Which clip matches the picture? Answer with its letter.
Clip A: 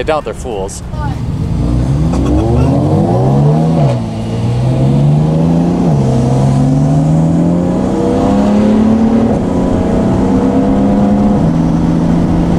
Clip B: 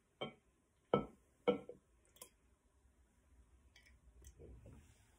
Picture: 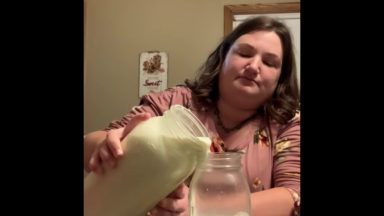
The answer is B